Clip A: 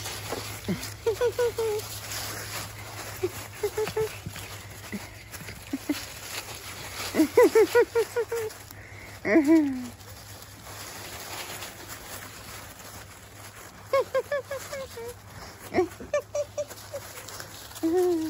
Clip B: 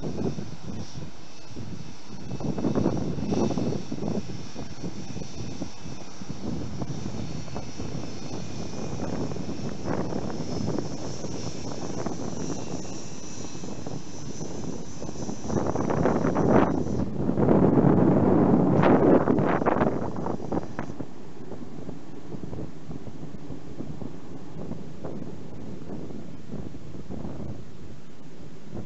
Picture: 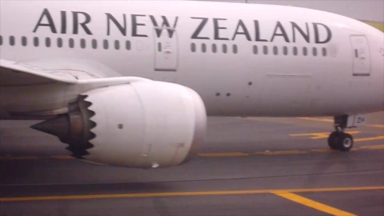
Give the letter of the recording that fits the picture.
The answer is B